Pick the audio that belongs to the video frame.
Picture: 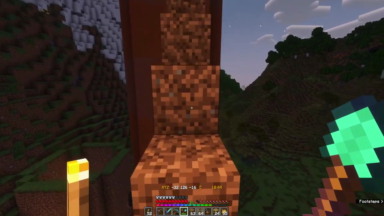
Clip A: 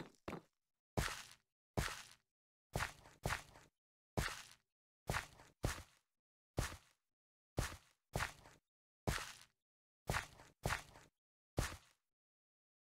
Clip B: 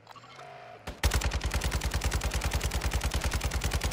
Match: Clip A